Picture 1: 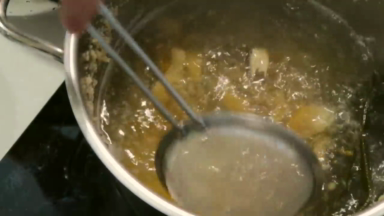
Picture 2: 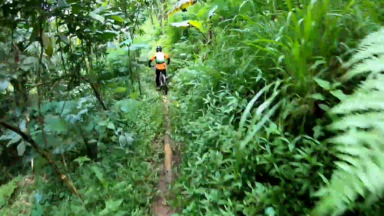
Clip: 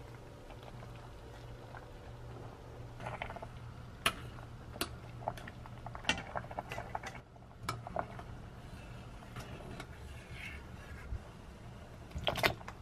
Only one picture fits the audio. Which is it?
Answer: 1